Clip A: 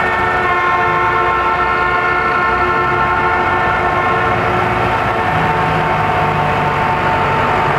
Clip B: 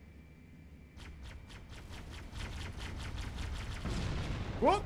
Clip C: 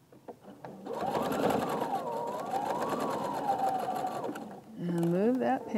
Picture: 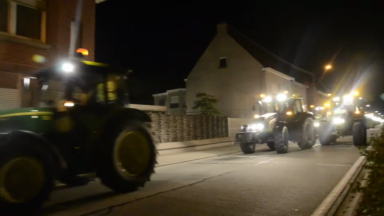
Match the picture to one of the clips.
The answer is A